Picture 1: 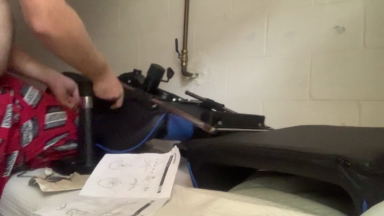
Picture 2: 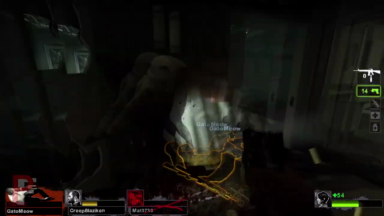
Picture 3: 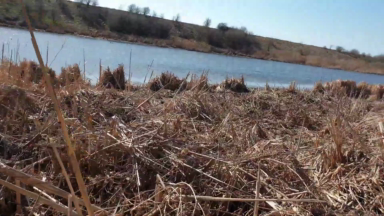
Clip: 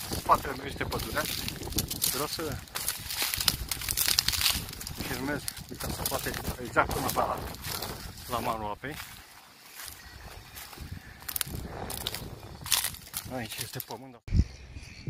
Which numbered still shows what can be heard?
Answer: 3